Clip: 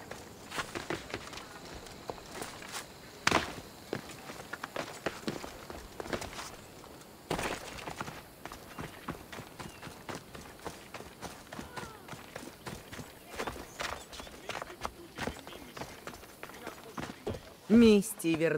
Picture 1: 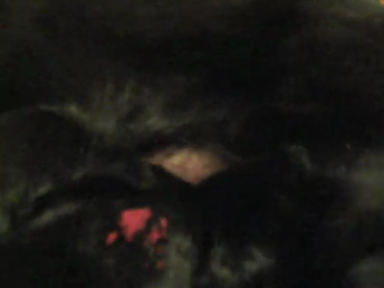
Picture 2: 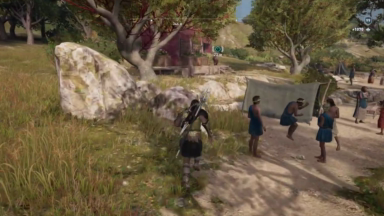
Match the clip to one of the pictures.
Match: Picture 2